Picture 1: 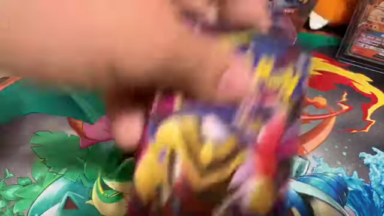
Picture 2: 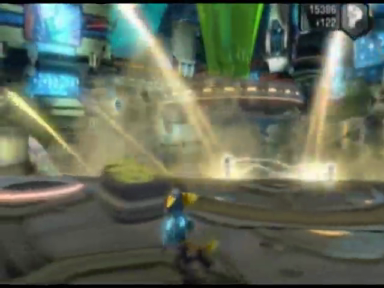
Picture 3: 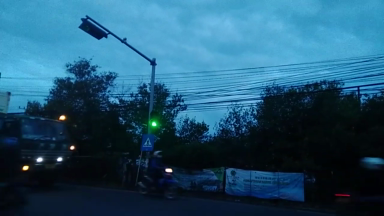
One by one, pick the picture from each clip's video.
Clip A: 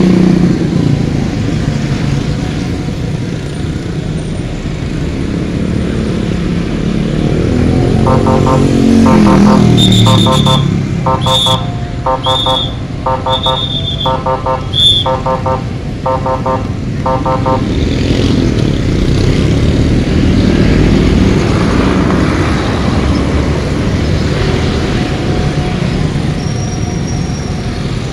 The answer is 3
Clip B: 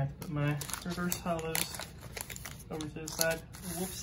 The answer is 1